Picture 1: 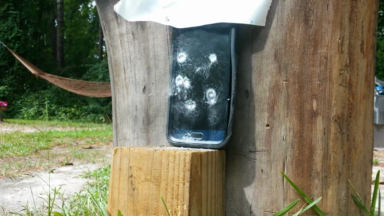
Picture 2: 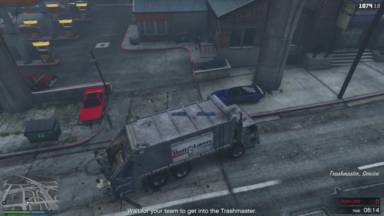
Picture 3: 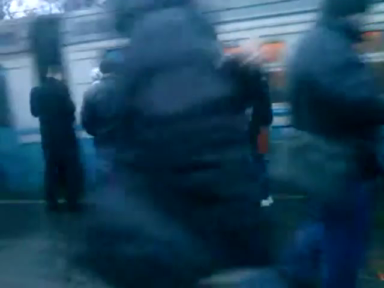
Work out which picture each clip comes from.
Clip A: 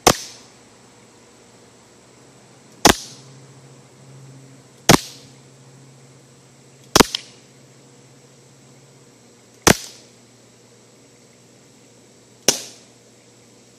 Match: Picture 1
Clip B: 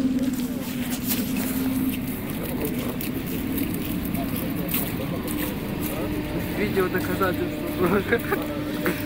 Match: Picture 3